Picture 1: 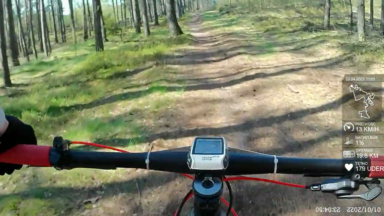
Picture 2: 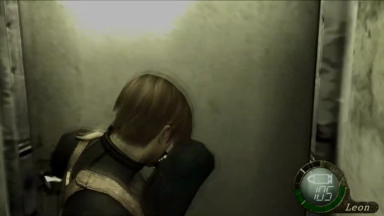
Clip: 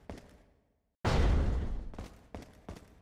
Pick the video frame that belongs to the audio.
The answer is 2